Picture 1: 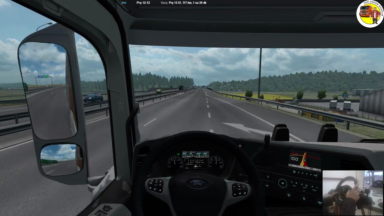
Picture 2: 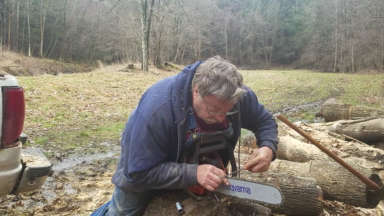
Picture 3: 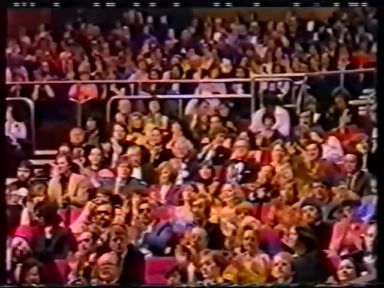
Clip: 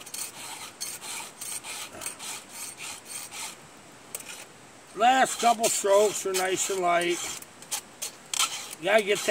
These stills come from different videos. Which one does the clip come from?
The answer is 2